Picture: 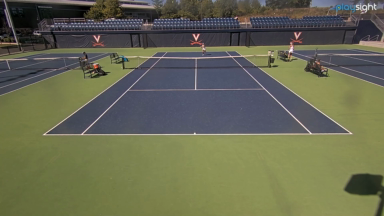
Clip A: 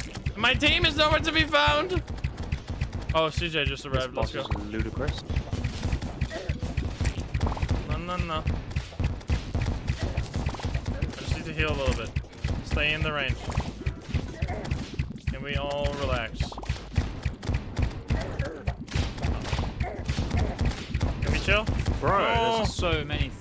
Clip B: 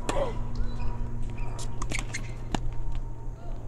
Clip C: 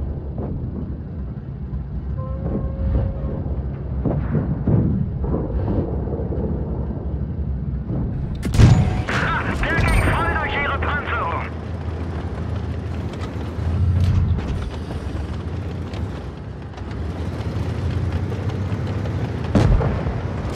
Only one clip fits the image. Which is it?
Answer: B